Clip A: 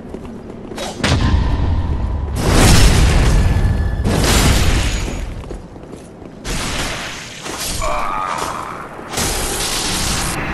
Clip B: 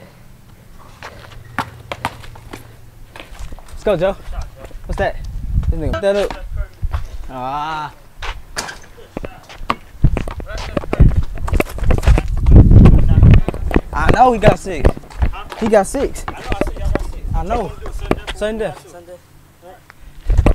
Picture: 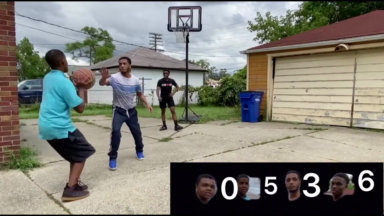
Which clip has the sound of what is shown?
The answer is B